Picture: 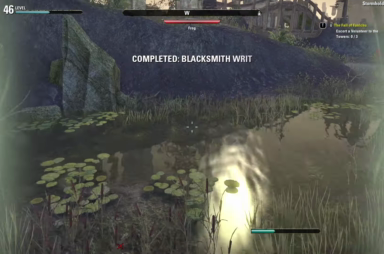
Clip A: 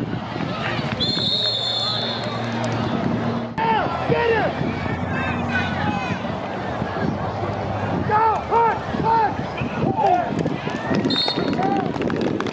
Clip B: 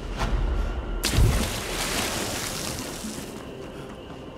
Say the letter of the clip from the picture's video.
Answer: B